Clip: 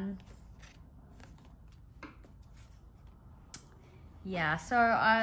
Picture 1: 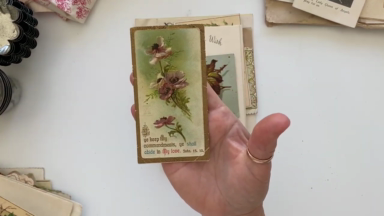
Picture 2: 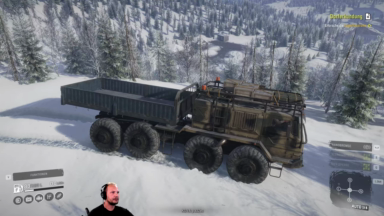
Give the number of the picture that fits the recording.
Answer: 1